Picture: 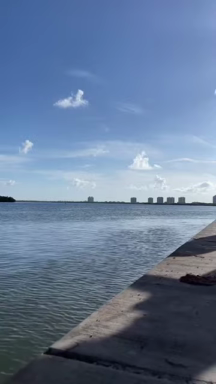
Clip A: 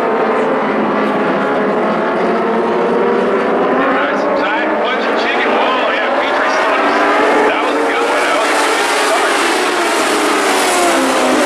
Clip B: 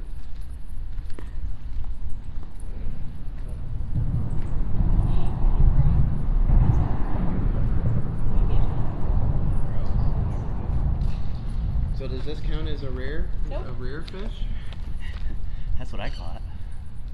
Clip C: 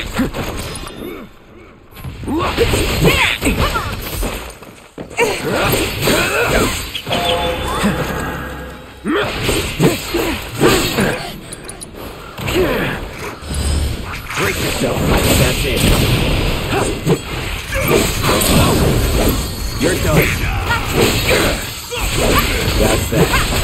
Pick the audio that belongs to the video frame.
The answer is B